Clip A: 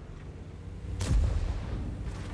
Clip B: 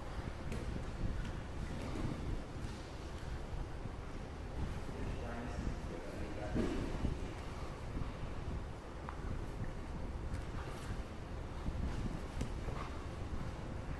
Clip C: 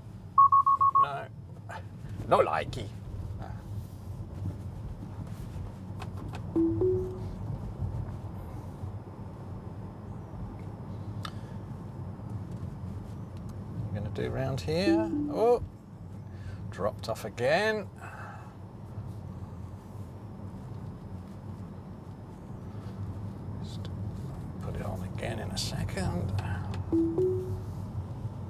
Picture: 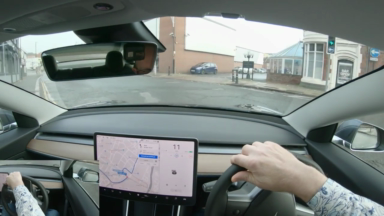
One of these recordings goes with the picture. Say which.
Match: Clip C